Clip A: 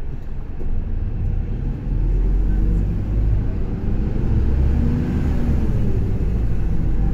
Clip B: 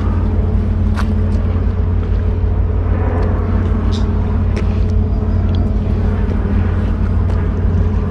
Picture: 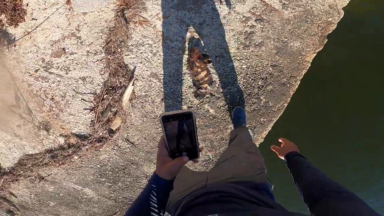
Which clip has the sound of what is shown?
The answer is B